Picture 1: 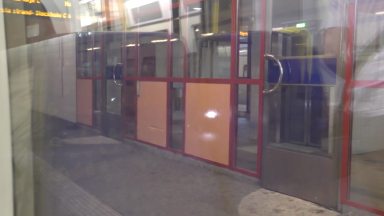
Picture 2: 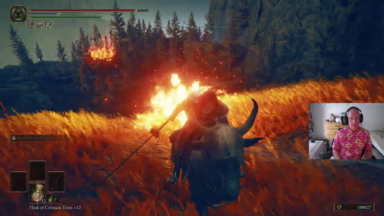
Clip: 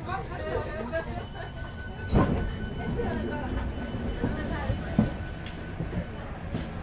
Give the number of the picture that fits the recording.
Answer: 1